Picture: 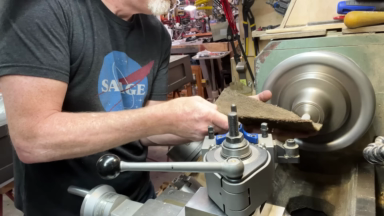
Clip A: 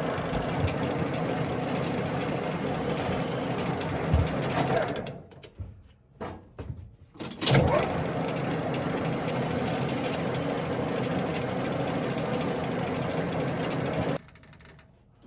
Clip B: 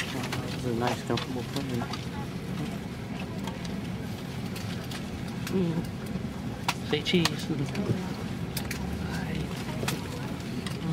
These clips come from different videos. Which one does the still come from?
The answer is A